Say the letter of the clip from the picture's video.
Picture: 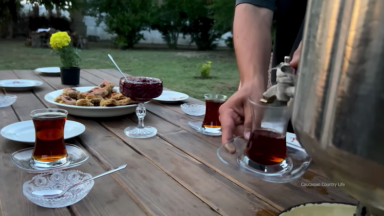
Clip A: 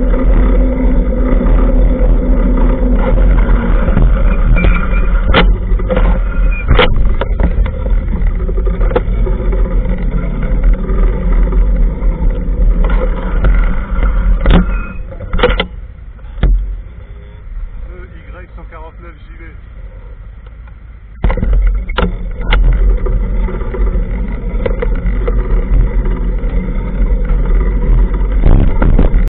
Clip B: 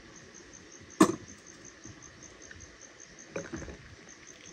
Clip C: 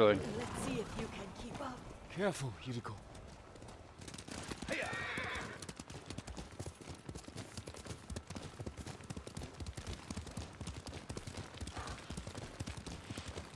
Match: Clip B